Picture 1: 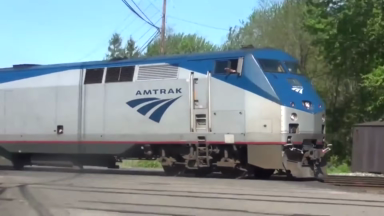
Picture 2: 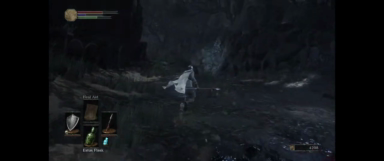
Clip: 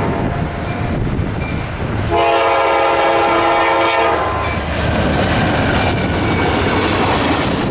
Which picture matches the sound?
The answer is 1